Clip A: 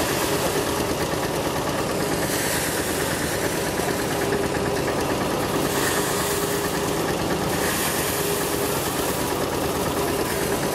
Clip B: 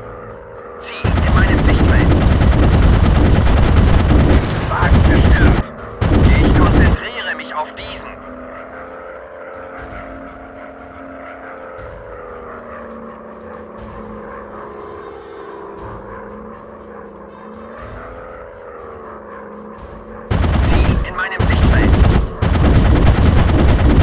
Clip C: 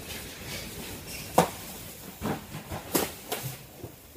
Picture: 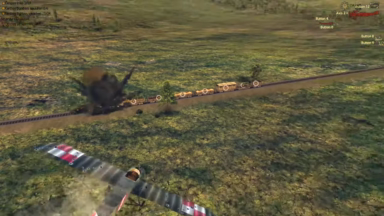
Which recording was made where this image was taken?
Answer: B